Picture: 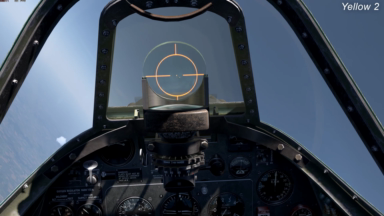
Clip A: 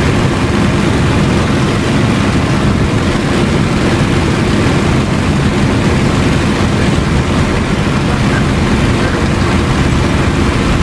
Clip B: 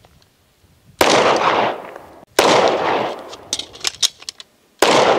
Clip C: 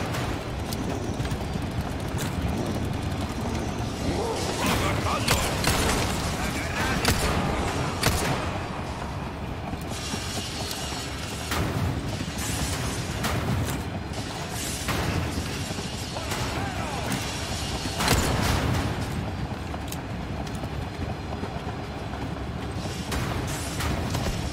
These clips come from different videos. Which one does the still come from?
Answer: A